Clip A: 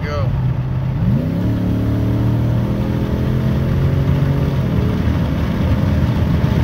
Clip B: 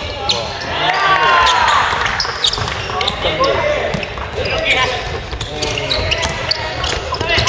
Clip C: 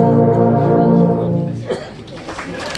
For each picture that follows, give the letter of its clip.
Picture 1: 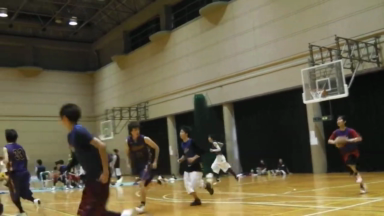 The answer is B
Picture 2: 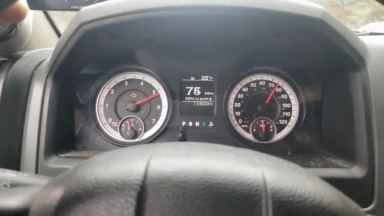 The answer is A